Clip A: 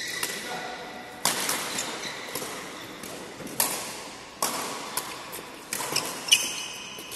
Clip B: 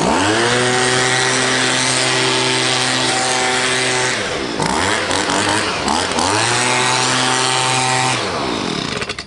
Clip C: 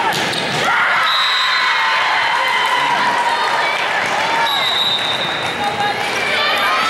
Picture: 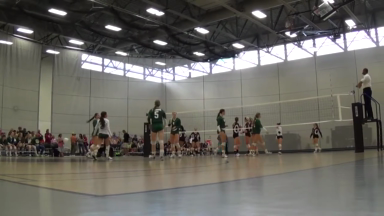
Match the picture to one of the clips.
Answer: C